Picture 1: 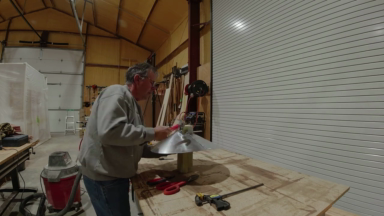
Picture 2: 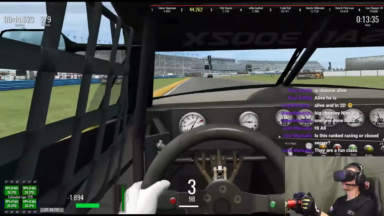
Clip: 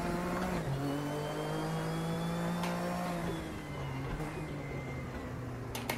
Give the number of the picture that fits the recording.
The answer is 2